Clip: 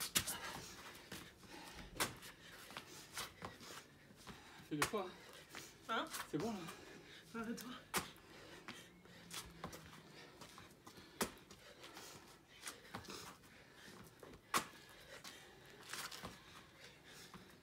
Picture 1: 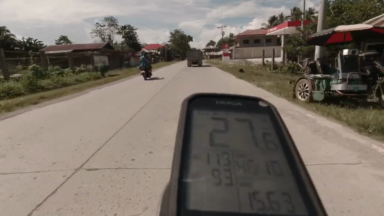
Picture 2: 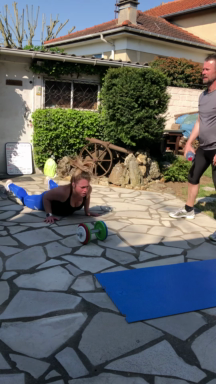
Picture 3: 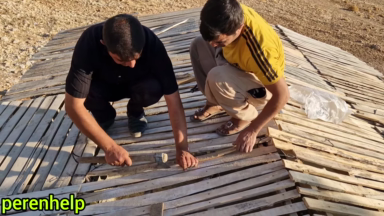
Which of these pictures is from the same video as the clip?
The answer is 2